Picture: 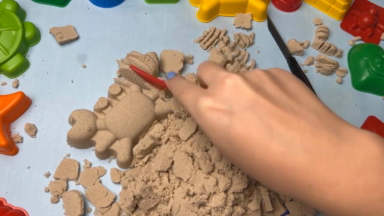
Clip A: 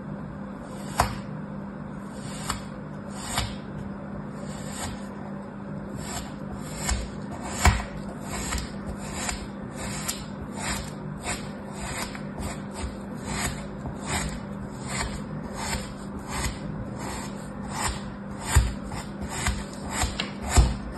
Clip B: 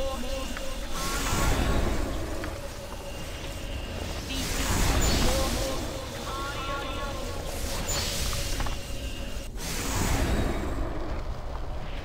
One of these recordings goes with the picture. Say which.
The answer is A